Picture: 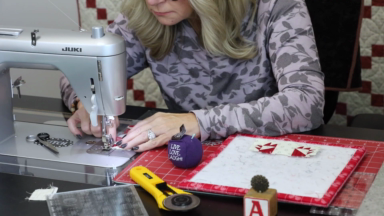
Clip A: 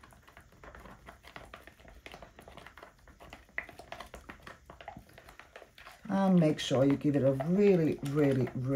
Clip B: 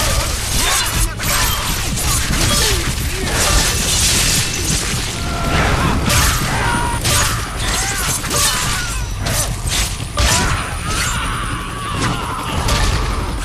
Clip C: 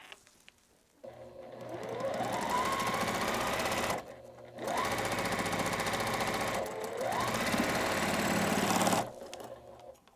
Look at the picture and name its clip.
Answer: C